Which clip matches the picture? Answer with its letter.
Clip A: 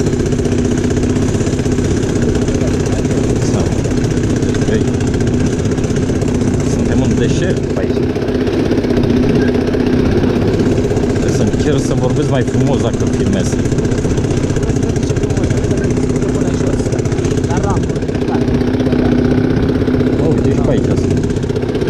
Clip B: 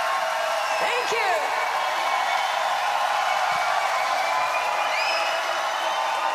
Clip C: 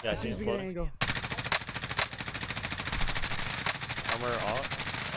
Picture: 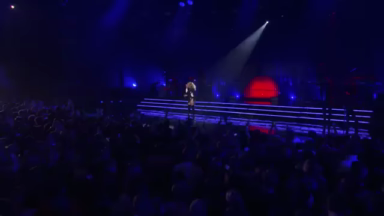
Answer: B